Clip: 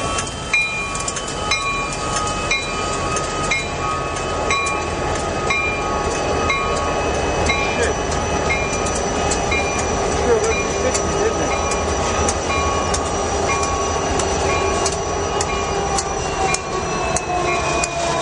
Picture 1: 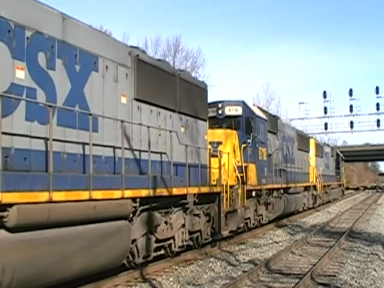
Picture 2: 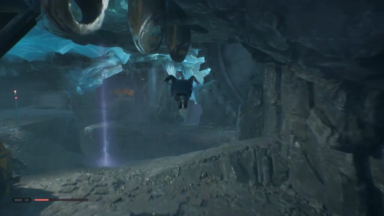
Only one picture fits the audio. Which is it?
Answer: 1